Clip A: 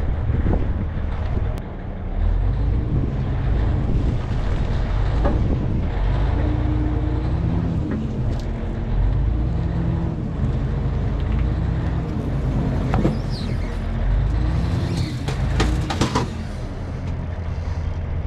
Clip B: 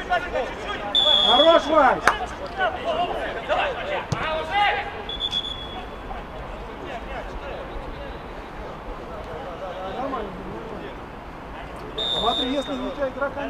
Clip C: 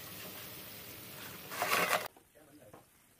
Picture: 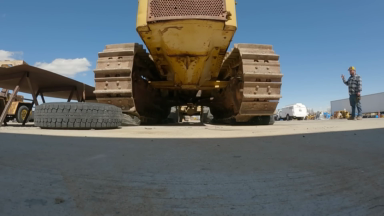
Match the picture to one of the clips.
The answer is A